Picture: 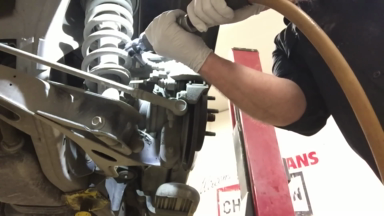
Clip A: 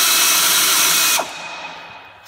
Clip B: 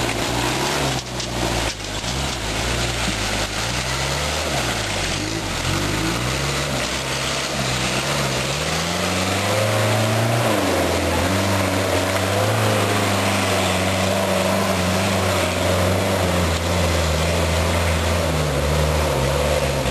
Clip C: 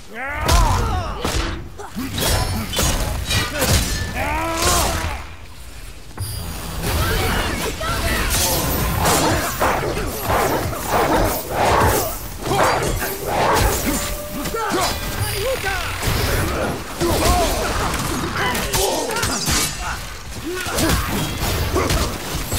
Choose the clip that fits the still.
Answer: A